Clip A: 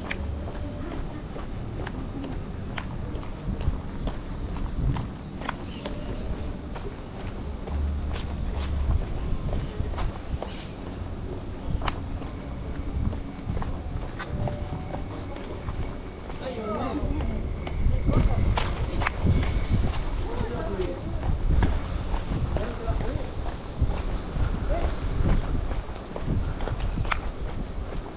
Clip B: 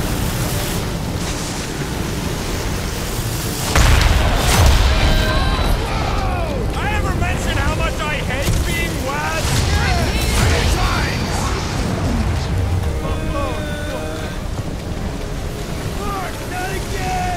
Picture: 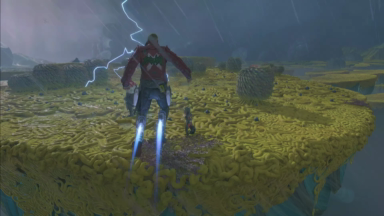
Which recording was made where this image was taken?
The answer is B